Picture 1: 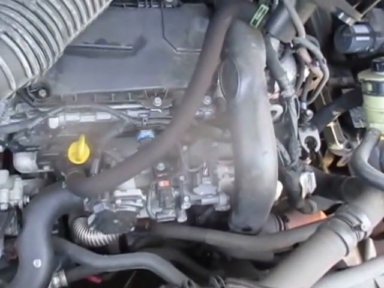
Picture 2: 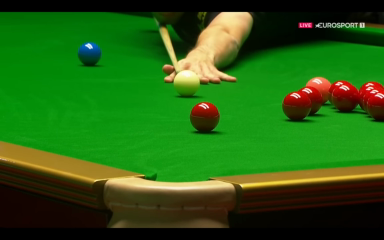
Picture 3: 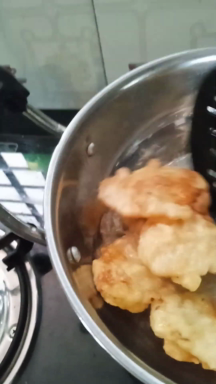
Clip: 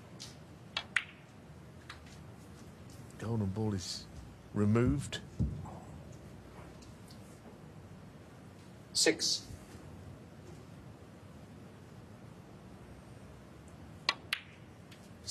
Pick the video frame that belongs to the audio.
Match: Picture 2